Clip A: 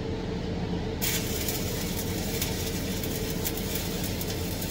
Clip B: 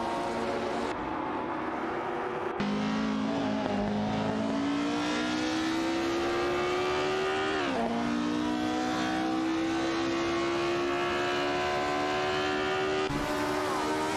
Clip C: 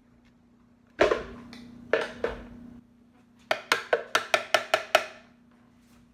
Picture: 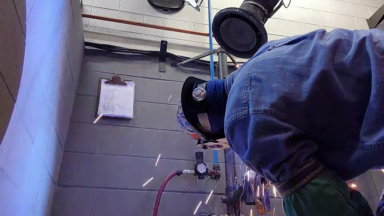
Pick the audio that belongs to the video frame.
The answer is A